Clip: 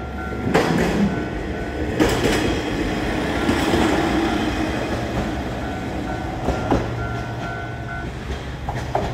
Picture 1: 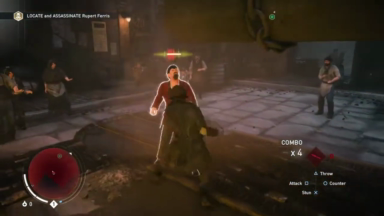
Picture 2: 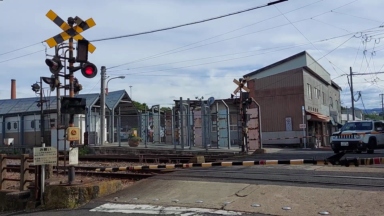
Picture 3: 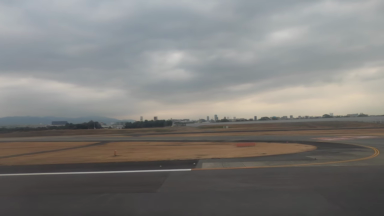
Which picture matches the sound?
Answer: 2